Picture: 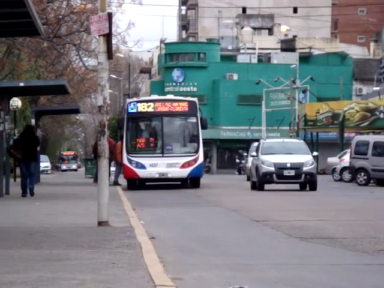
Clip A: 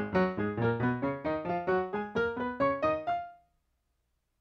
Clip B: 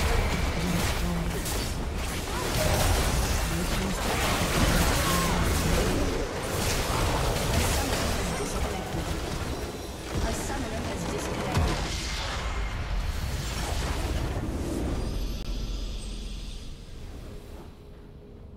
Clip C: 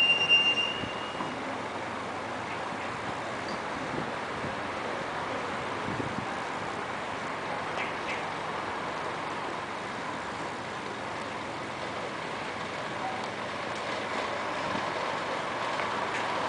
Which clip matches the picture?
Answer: C